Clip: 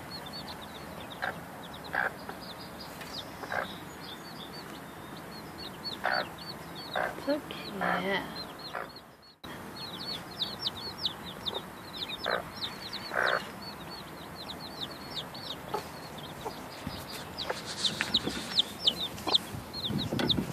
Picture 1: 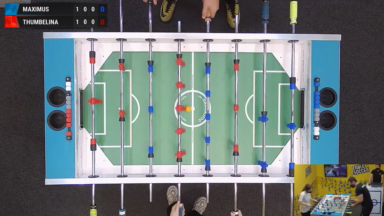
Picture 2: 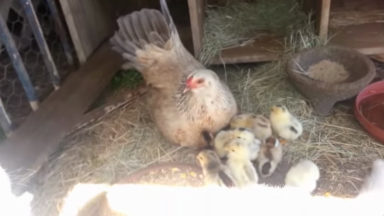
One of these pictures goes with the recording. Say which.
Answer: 2